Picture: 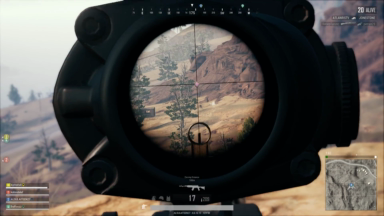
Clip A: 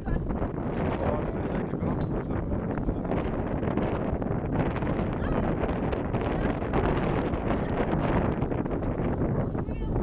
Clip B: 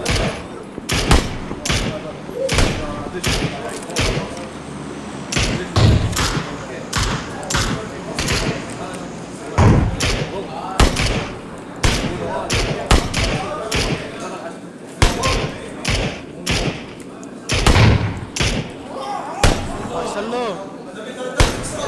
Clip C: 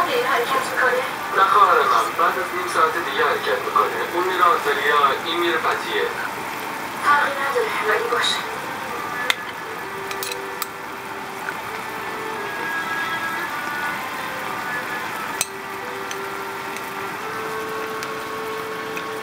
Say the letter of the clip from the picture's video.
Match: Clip B